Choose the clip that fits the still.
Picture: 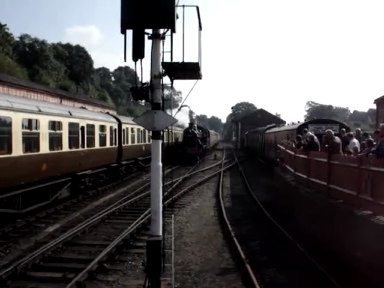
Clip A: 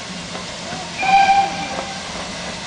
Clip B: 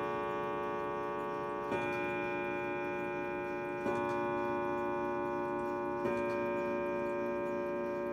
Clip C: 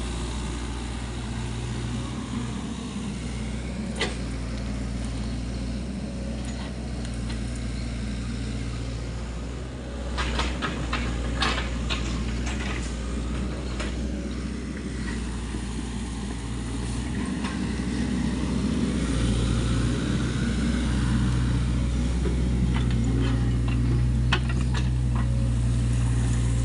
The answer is A